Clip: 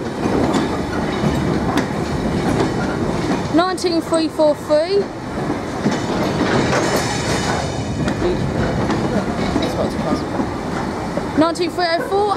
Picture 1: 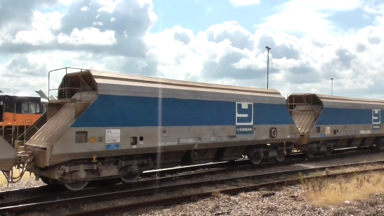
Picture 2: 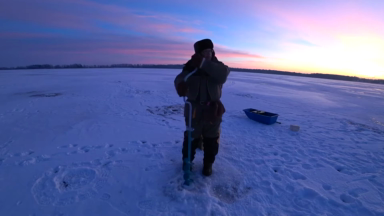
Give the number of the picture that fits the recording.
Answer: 1